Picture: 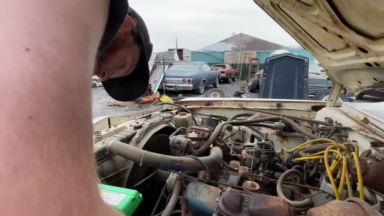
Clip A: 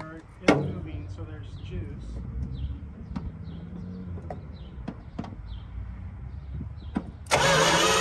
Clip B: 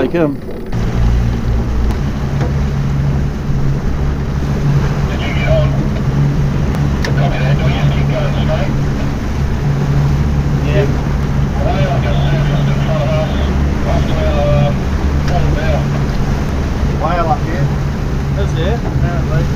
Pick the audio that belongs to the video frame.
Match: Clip A